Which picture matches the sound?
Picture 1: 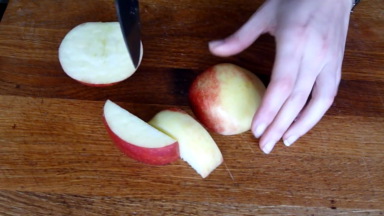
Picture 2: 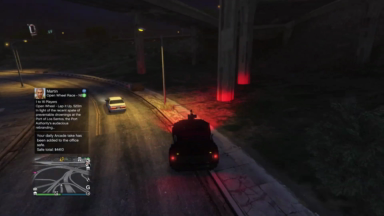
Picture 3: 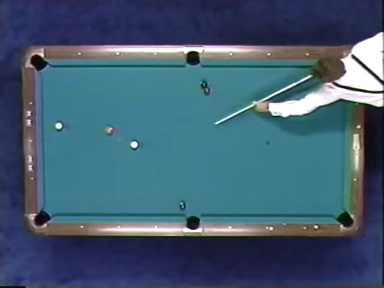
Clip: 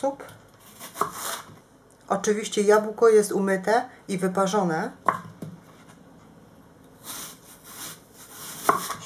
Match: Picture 1